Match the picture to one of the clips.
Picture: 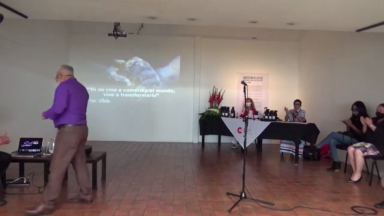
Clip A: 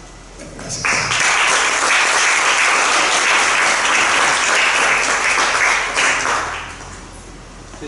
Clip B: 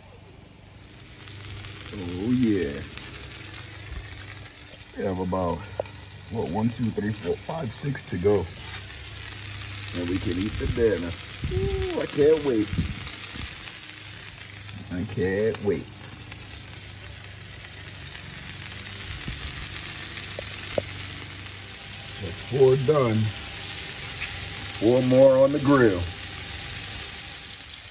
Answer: A